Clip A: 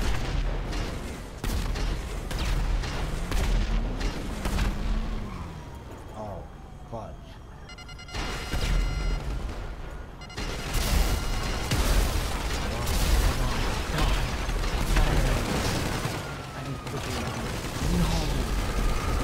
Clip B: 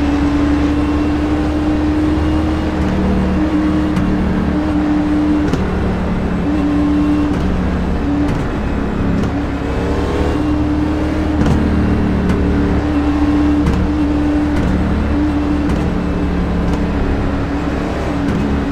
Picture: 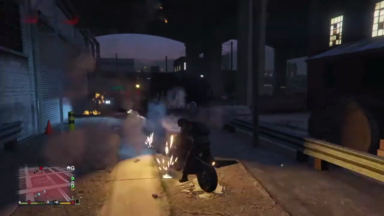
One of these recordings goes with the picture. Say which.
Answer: A